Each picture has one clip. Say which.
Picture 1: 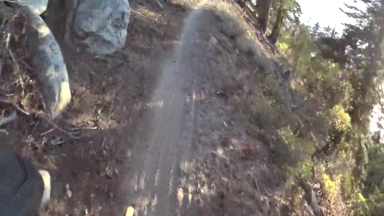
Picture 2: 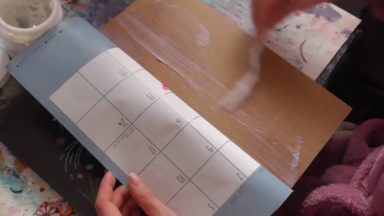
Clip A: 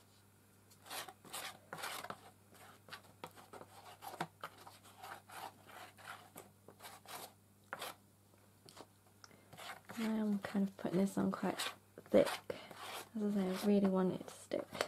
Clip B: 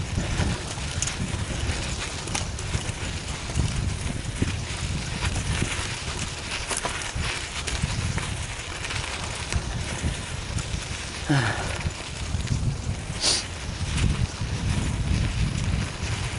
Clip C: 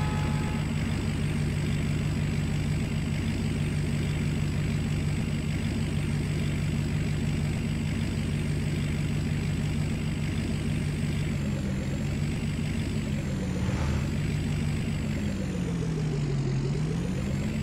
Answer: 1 B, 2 A